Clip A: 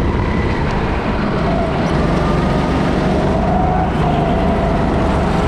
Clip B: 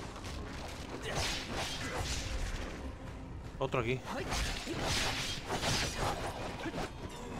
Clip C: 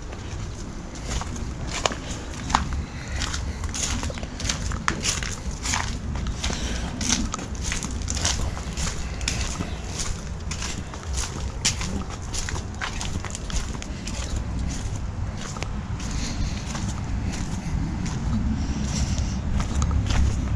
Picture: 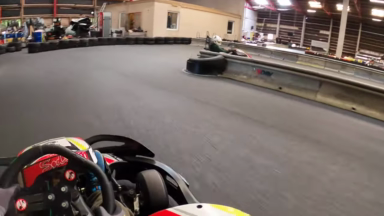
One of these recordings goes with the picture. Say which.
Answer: A